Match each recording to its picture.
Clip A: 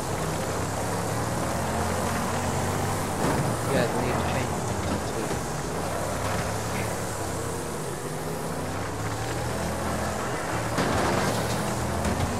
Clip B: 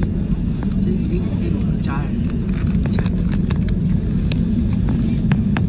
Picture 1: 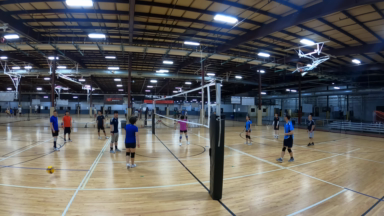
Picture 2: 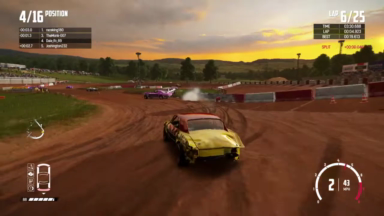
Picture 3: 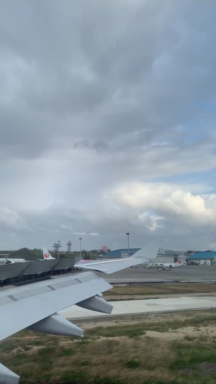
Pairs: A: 2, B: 3